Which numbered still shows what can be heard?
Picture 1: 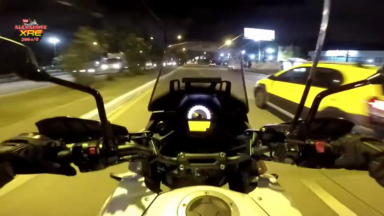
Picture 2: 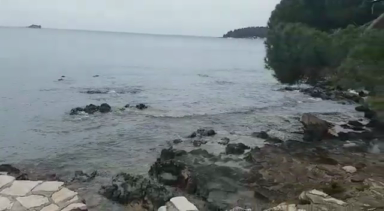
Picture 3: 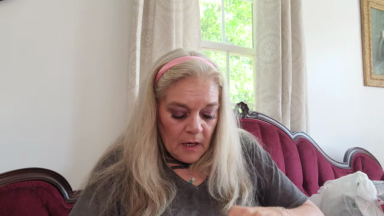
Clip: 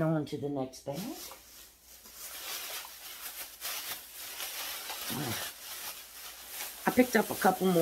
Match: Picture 3